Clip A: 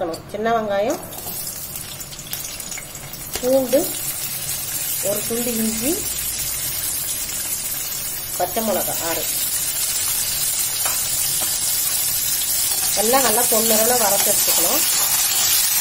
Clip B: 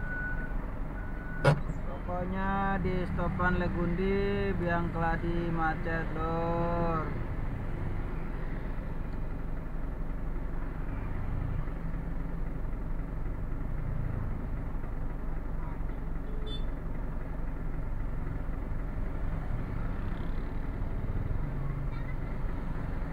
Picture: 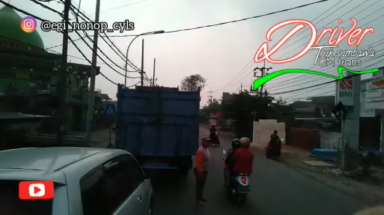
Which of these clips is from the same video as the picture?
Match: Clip B